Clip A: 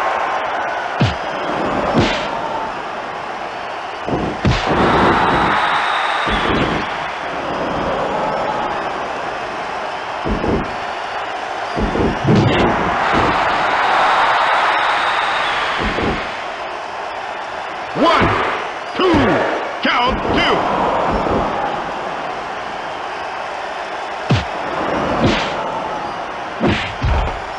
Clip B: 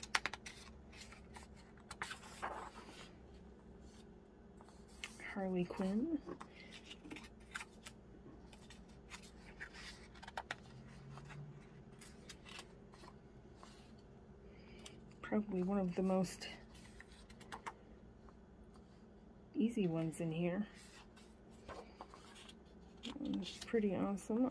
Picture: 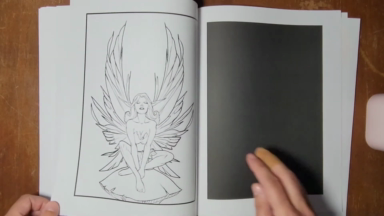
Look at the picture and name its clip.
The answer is B